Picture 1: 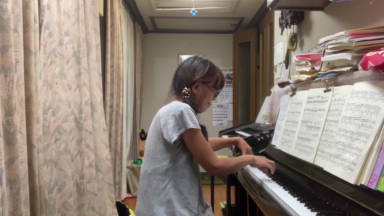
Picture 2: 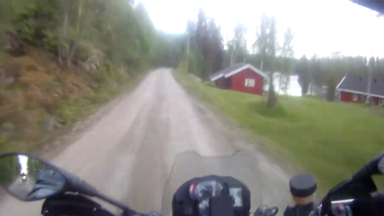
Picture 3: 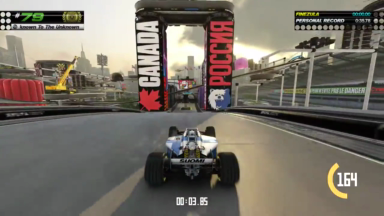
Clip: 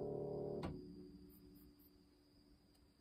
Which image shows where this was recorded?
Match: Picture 1